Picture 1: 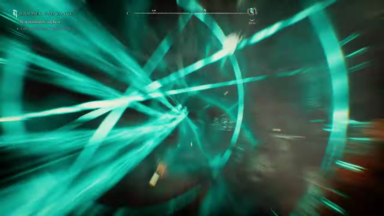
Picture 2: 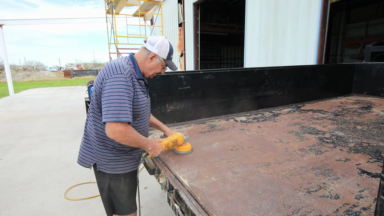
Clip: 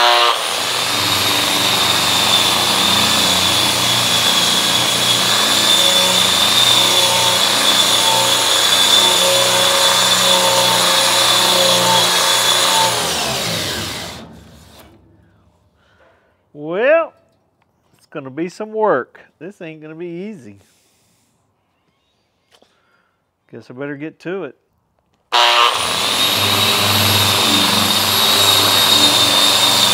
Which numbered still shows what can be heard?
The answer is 2